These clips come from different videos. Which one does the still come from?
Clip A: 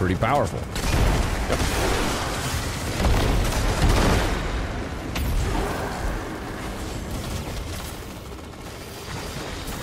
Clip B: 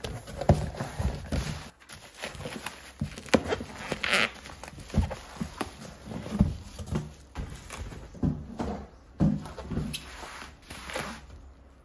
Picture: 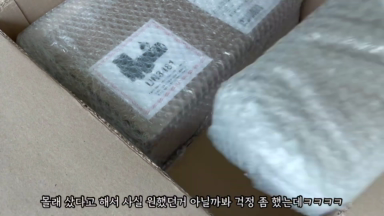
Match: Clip B